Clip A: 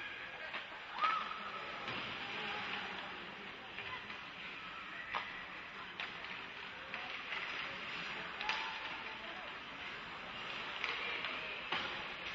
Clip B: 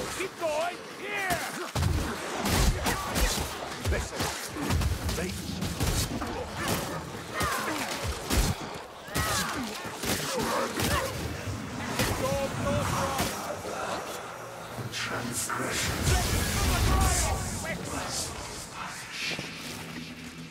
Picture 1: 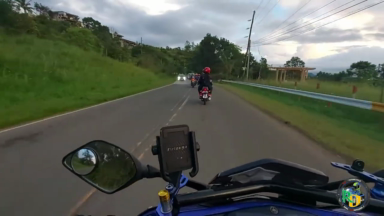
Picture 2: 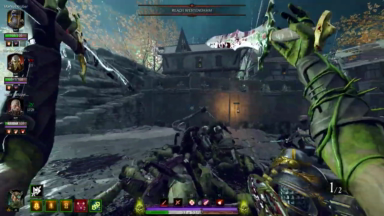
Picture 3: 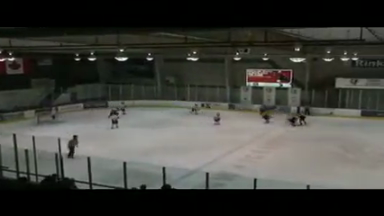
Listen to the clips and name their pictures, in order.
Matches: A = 3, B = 2